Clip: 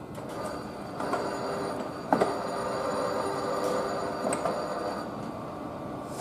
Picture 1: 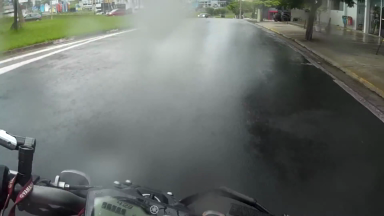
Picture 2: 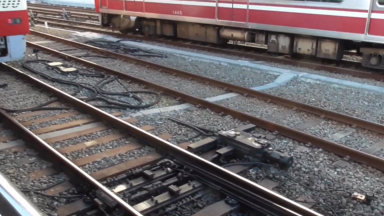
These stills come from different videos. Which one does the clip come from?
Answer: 2